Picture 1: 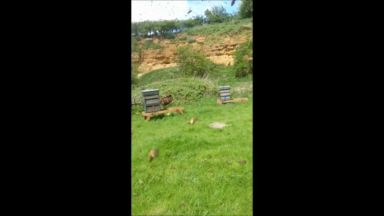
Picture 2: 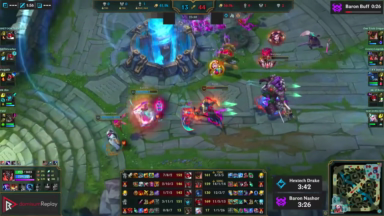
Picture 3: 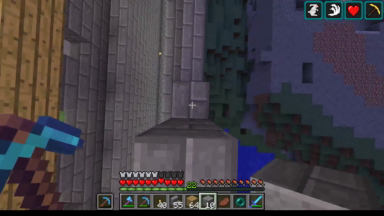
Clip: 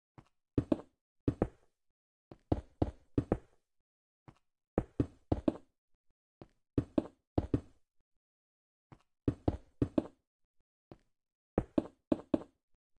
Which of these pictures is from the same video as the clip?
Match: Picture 3